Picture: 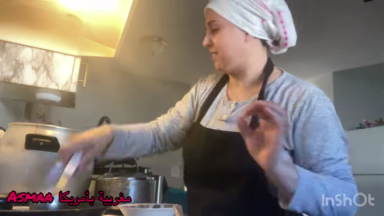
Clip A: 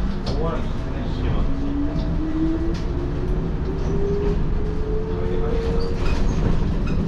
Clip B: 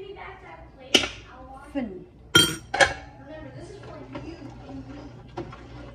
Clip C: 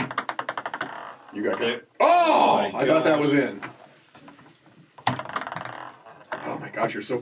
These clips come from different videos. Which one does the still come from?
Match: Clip B